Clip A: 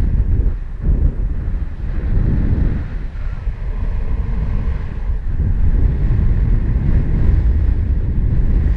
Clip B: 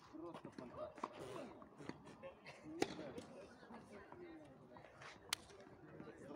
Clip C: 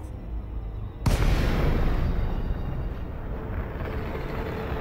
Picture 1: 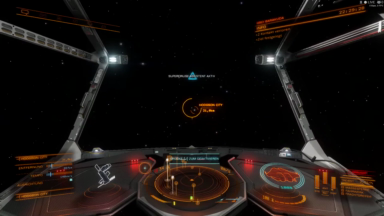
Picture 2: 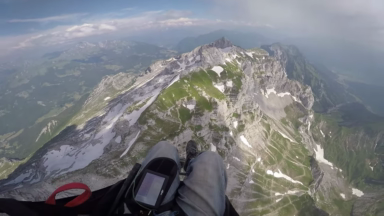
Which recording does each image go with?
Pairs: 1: C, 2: A